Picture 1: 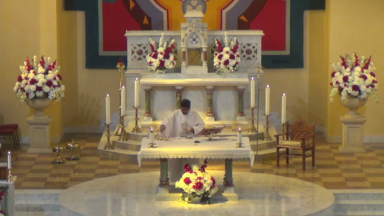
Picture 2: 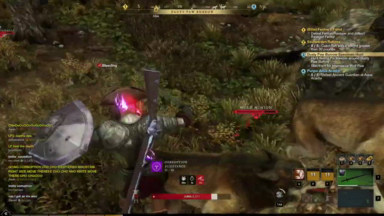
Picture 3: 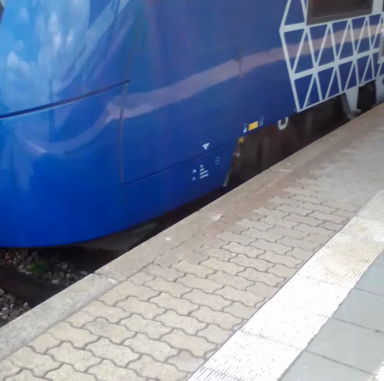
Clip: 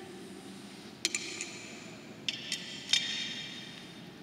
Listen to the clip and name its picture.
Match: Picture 1